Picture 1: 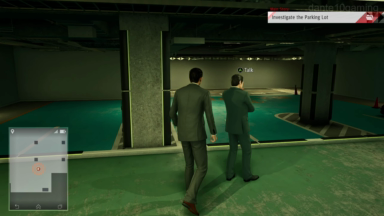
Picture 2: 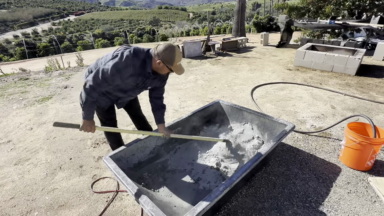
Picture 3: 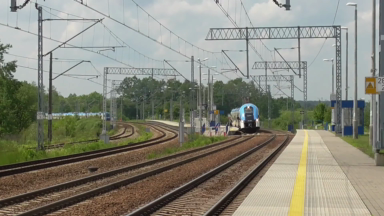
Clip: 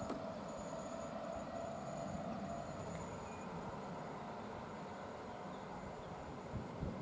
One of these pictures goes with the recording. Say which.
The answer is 3